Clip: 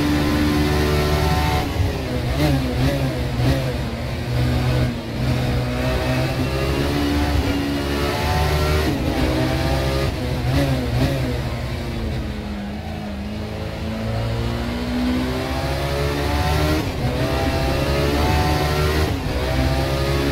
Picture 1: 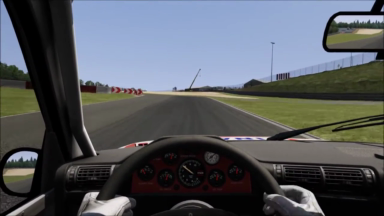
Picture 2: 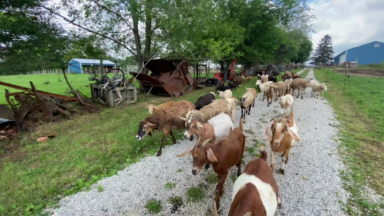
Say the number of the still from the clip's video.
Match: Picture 1